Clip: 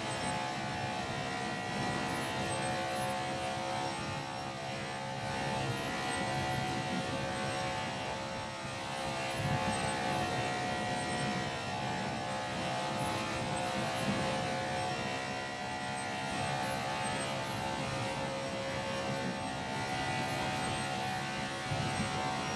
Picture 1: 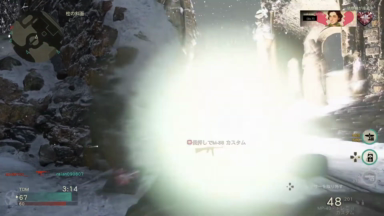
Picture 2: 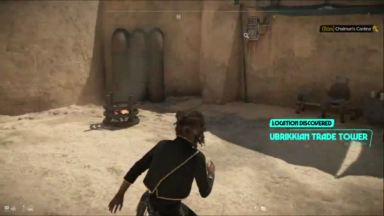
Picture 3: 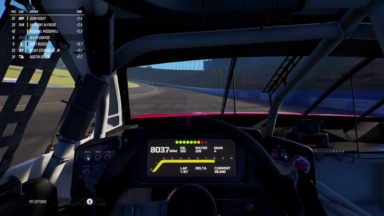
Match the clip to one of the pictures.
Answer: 3